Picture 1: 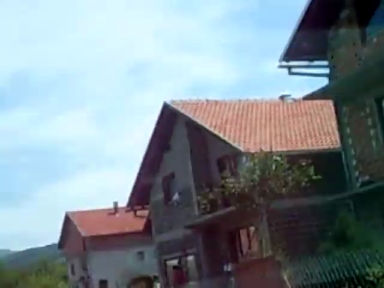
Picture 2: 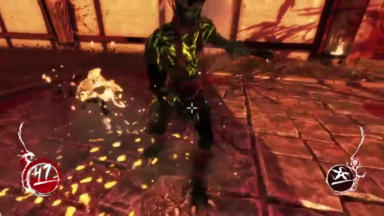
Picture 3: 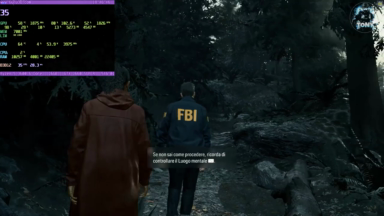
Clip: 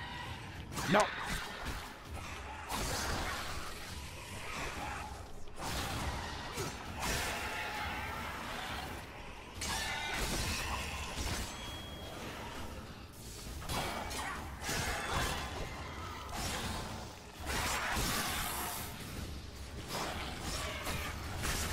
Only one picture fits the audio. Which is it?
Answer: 2